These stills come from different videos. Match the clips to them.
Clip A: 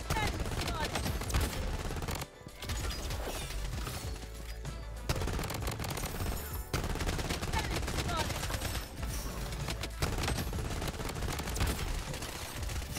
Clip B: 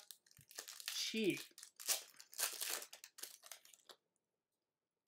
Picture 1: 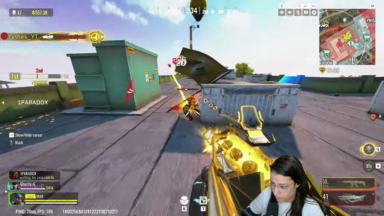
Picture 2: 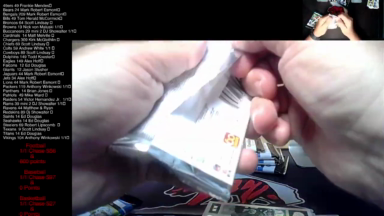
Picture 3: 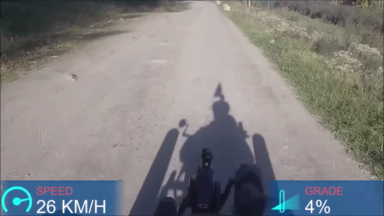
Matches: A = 1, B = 2